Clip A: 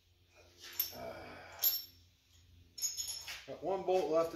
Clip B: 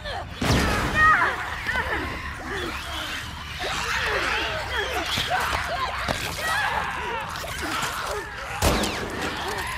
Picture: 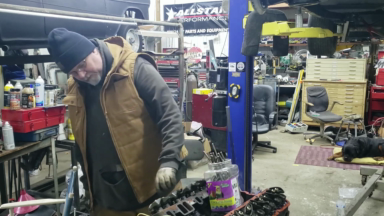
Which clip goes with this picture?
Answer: A